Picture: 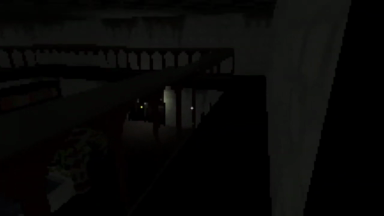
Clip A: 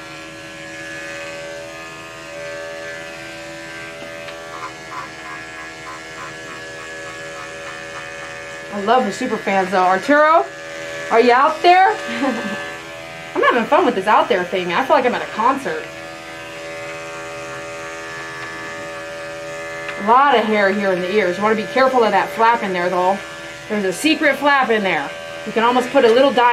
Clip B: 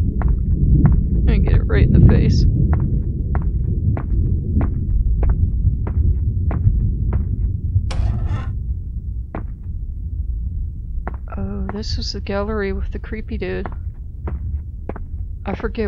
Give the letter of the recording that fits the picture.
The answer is B